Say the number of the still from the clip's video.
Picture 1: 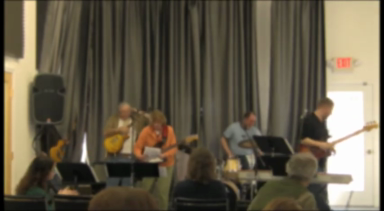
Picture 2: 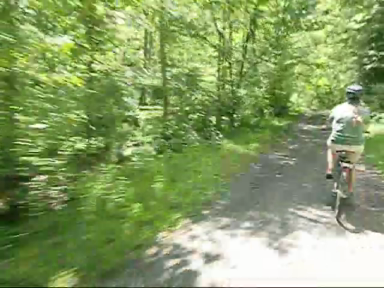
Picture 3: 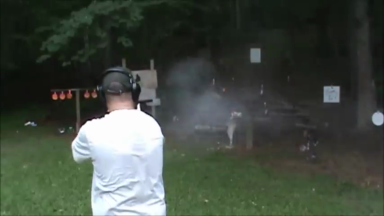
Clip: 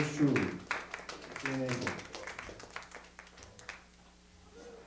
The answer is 1